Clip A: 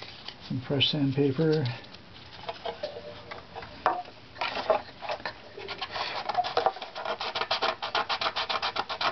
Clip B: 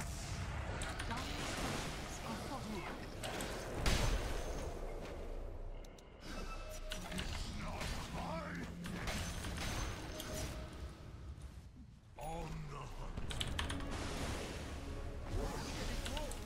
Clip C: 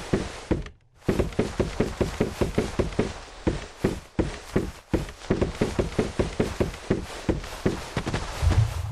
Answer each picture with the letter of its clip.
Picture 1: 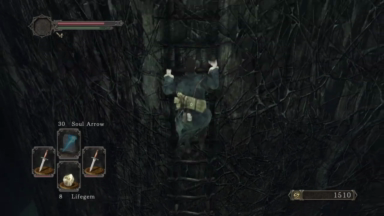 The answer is C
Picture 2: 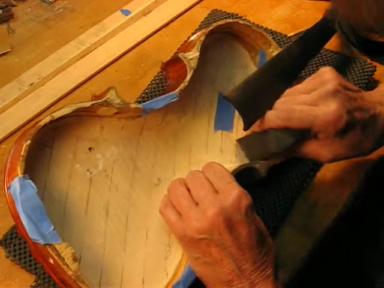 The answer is A